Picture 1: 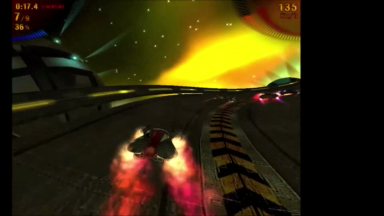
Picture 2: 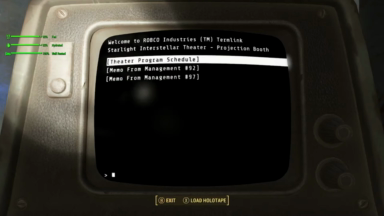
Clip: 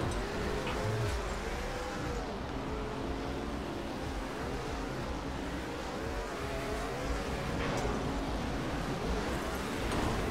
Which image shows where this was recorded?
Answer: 1